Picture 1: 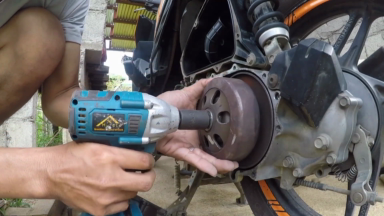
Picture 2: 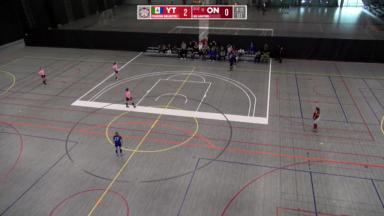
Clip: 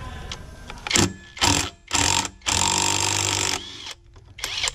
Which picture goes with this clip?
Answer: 1